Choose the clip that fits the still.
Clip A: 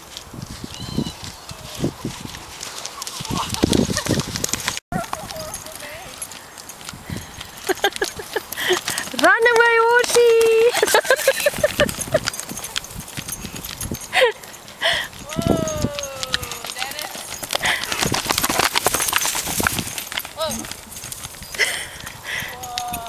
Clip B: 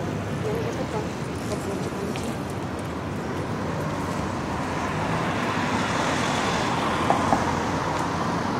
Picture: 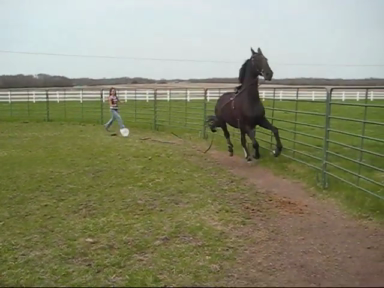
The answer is A